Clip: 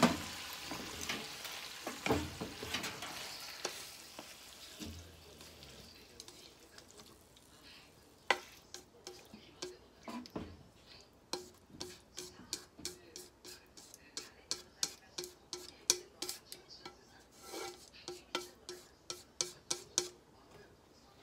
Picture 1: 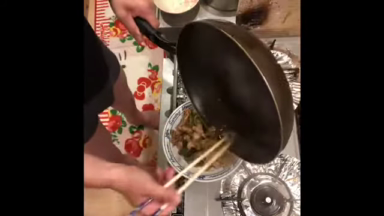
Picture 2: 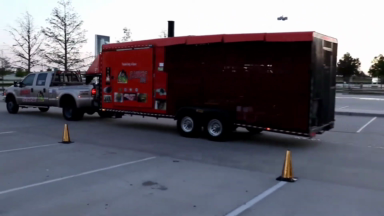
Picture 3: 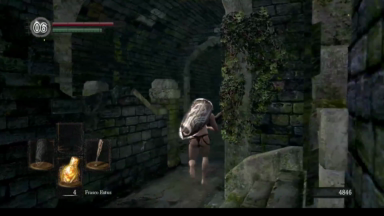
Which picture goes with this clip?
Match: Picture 1